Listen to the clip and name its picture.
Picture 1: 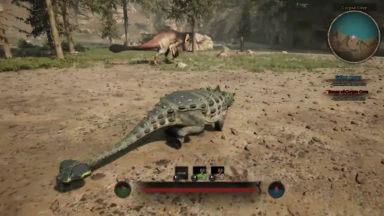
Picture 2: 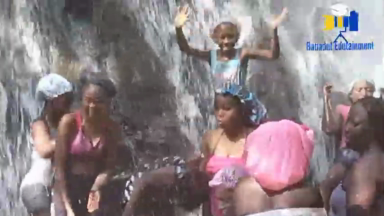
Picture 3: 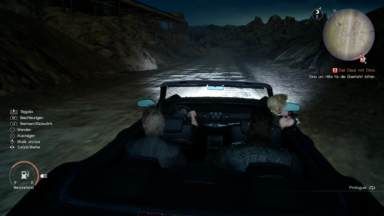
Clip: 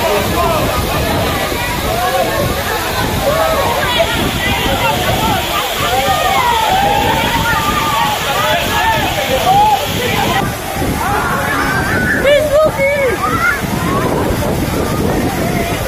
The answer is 2